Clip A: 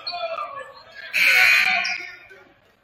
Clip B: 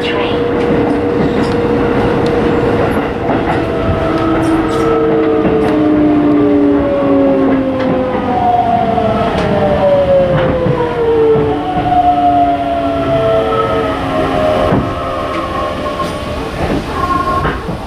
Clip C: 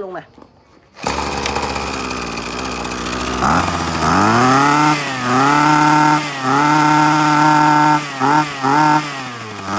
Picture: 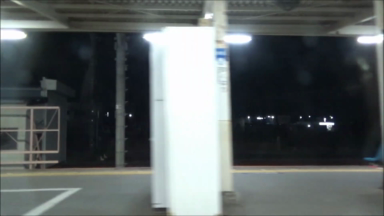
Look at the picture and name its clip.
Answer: B